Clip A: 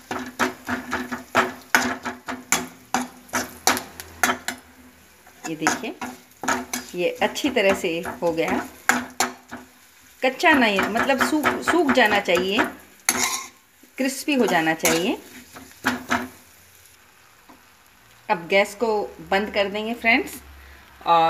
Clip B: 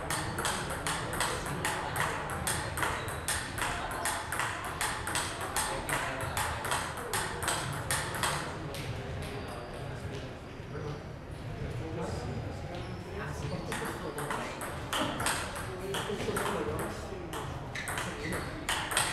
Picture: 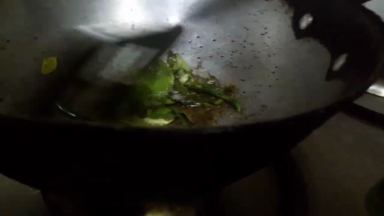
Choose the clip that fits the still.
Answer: A